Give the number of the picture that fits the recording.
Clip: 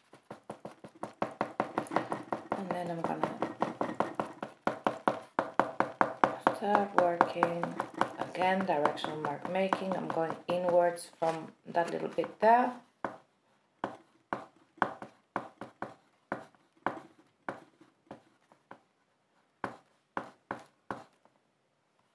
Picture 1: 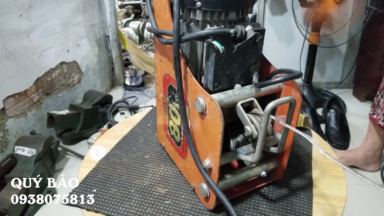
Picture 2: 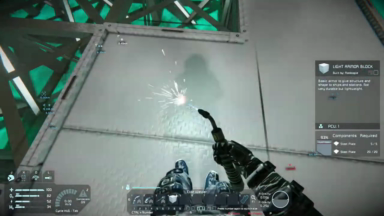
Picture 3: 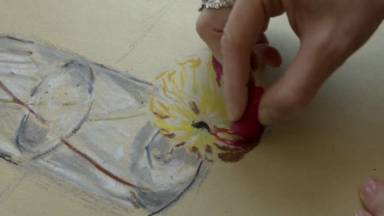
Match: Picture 3